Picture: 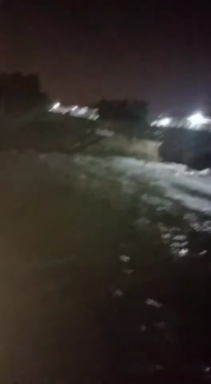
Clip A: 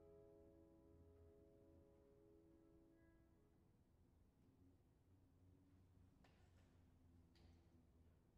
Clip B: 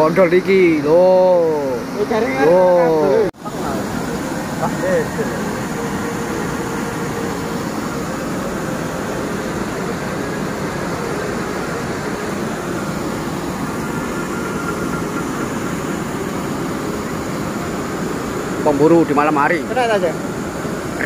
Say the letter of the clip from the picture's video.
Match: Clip B